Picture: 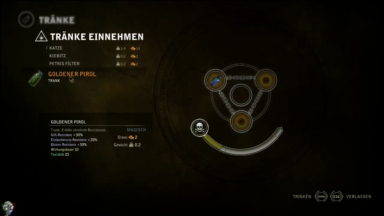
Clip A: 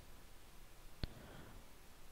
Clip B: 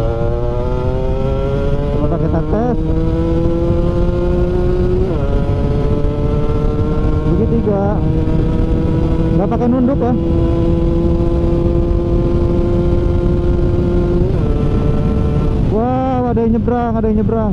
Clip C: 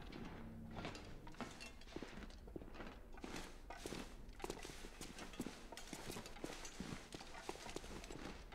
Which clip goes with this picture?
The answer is A